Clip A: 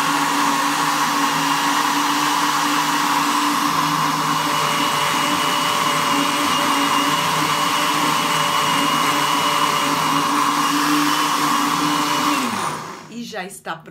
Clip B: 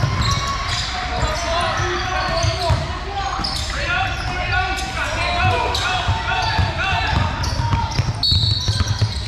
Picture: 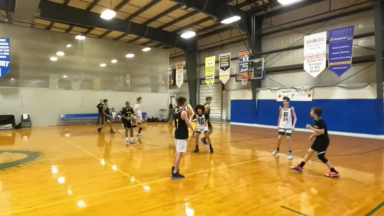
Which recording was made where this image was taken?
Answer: B